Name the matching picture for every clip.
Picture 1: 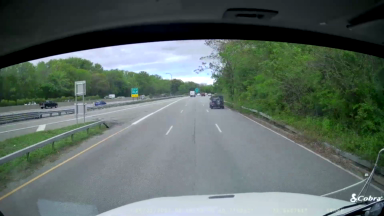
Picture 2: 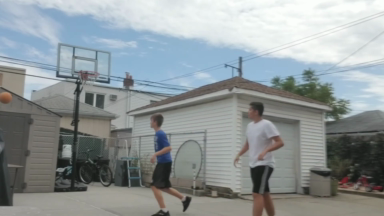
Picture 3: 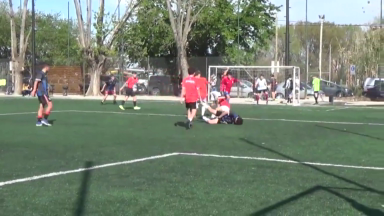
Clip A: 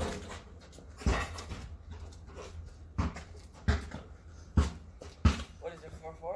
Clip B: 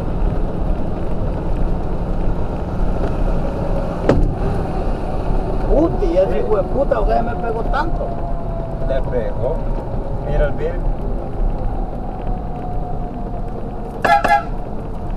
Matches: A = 2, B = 1